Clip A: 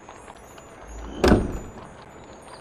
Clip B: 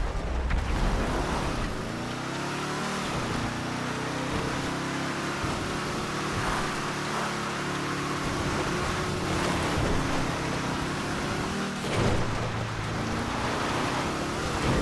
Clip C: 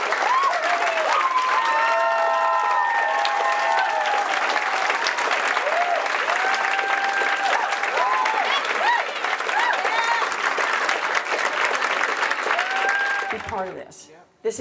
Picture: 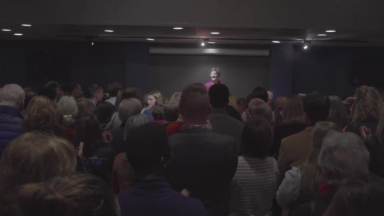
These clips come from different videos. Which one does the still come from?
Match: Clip C